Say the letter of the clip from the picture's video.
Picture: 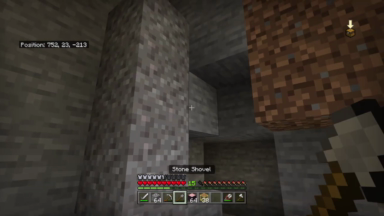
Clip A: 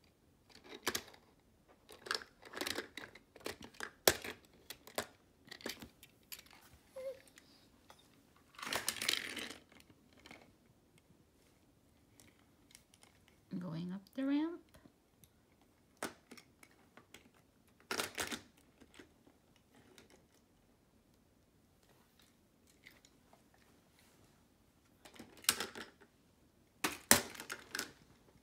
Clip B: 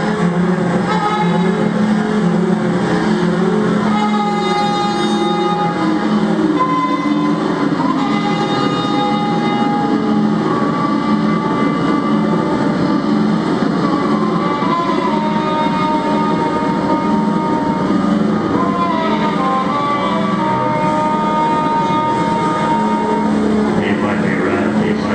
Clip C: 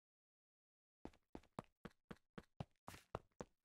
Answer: C